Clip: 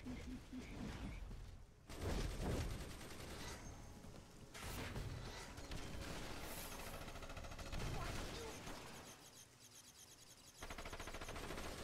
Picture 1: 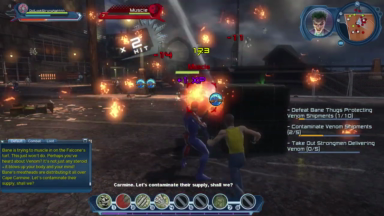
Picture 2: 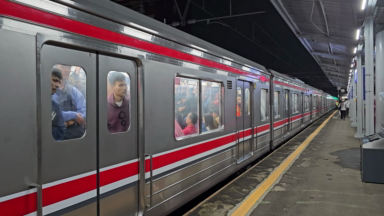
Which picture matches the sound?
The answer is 1